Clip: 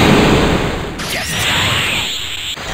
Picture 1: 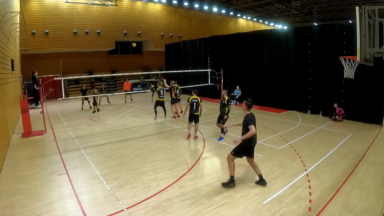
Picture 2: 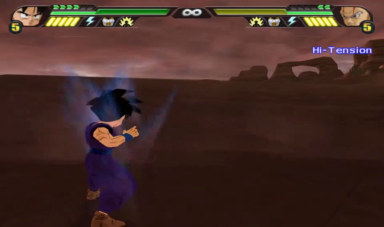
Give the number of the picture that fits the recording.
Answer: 2